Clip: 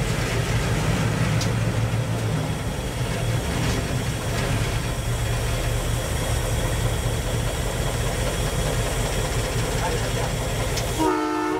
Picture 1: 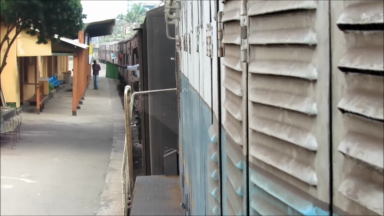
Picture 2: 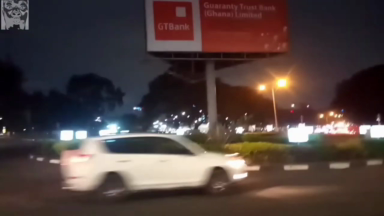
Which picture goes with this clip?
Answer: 1